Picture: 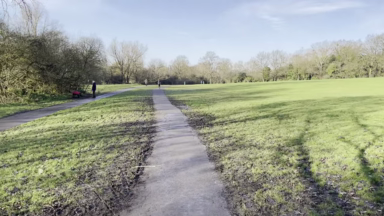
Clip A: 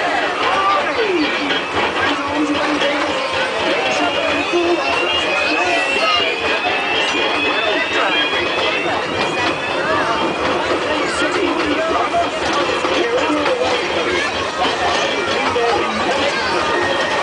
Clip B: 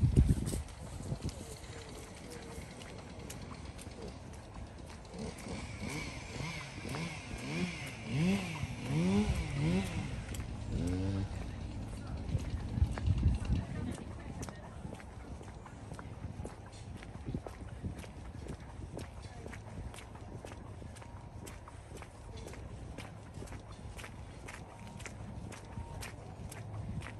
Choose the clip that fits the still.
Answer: B